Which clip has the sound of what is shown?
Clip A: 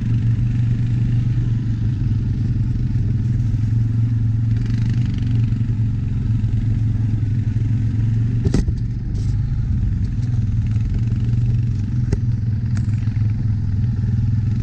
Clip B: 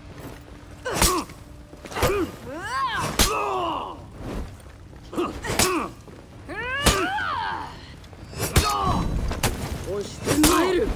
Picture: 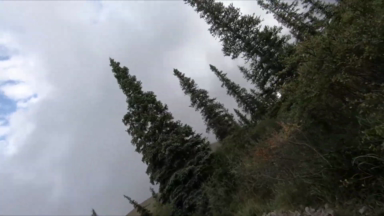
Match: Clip A